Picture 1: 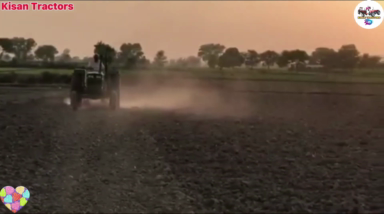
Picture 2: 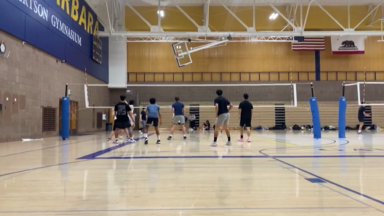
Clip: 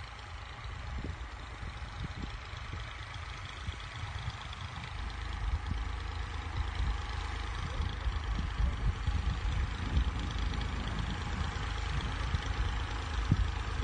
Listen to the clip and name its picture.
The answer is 1